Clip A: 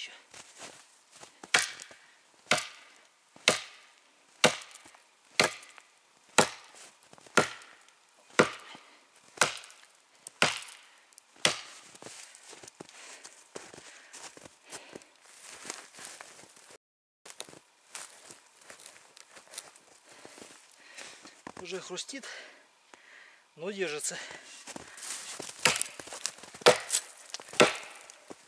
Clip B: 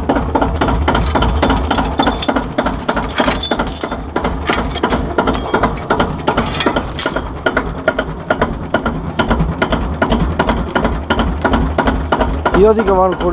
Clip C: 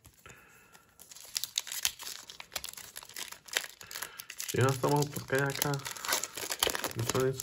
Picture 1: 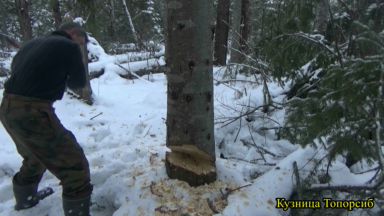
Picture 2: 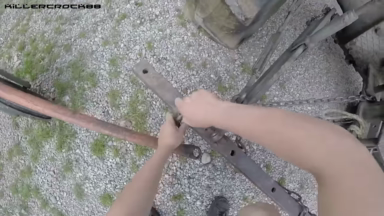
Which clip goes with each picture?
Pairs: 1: A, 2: B